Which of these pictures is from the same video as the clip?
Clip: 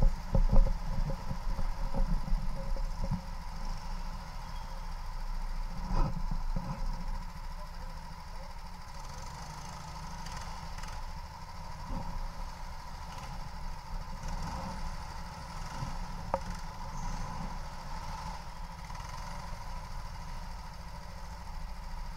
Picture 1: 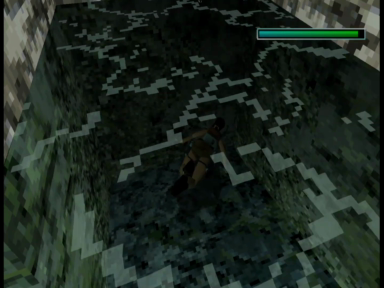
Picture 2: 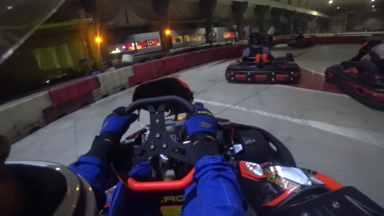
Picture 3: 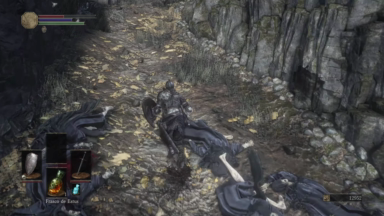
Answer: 2